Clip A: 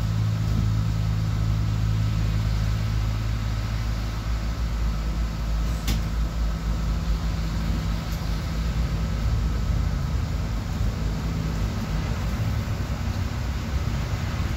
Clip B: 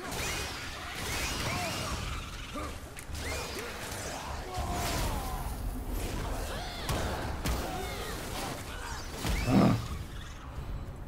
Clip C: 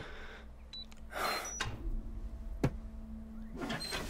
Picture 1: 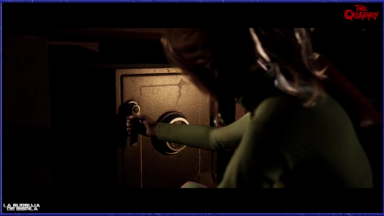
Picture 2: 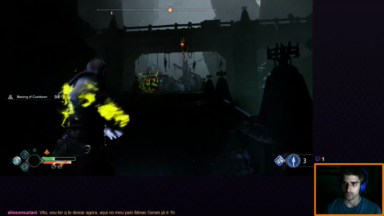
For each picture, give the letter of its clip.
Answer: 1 C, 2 B